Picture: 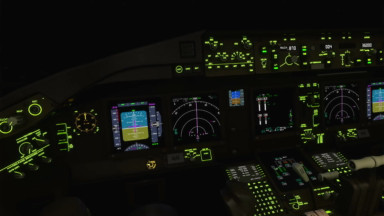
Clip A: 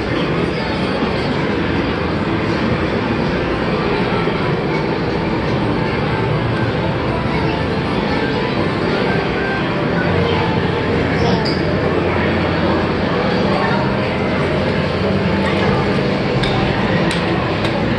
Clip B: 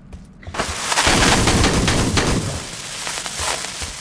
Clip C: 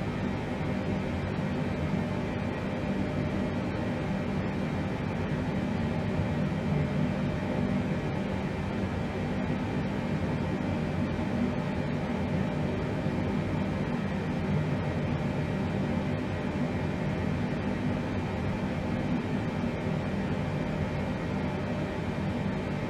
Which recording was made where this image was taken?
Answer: C